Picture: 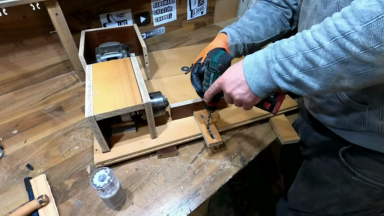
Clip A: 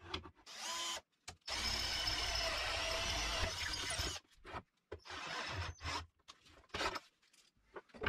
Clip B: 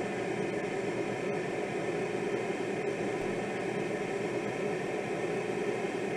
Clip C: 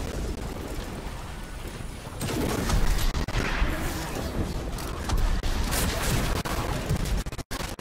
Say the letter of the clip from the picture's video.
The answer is A